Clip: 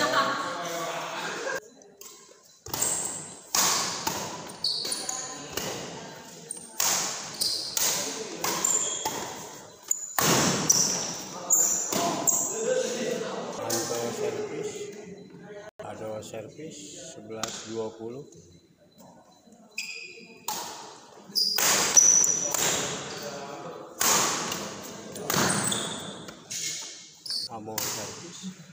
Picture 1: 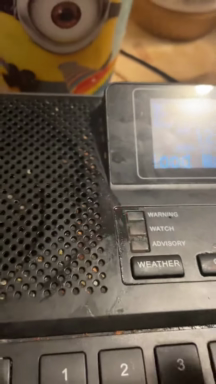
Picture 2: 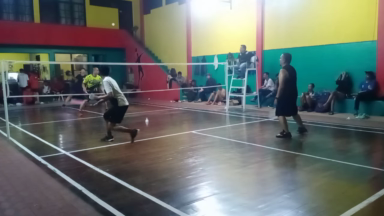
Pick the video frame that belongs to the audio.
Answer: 2